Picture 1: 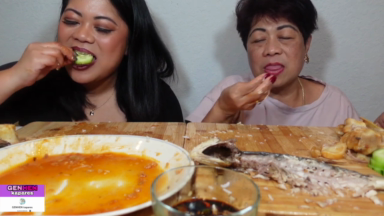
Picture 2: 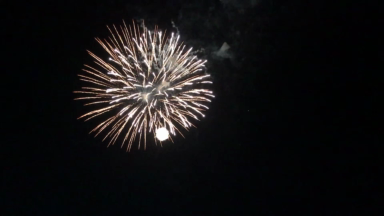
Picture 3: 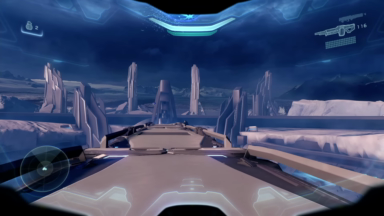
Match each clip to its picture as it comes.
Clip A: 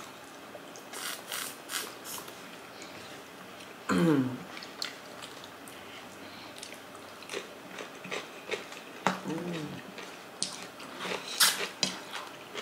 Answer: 1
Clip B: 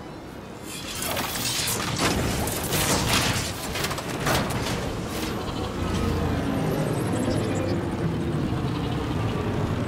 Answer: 3